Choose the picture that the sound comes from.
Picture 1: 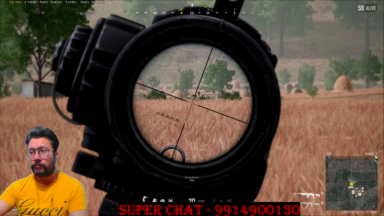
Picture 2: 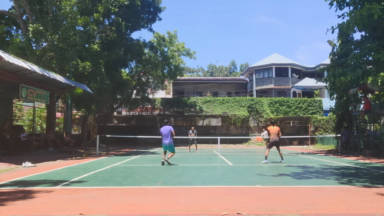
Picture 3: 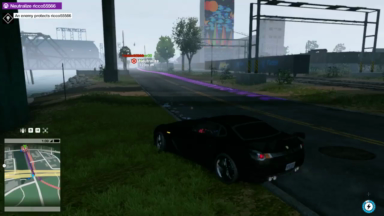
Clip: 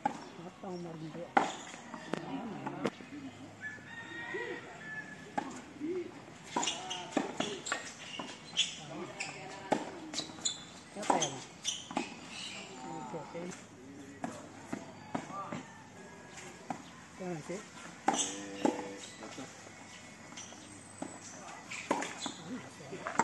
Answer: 2